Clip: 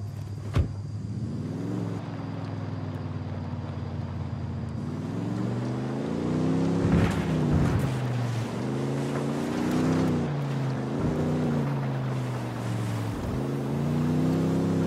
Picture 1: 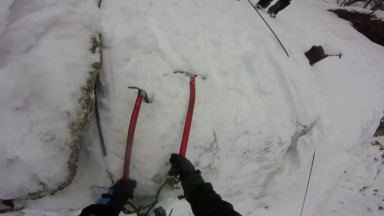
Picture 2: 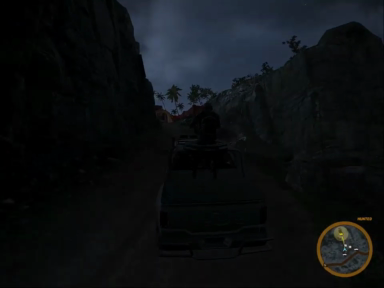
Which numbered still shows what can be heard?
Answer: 2